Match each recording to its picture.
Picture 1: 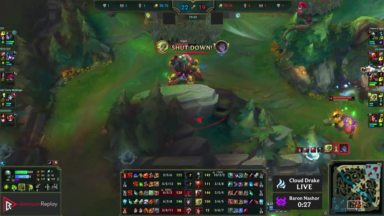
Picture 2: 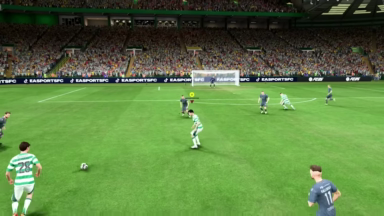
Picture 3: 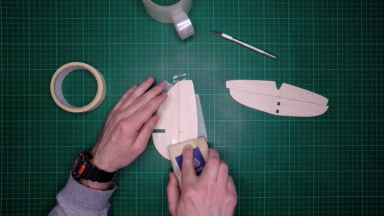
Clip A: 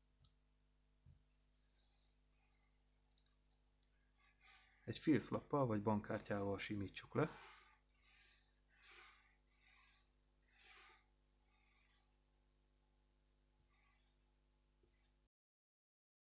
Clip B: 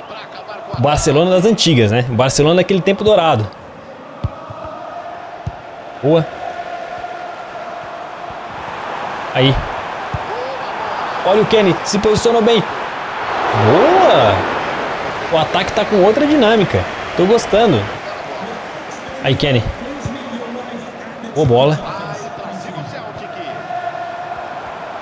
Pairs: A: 3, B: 2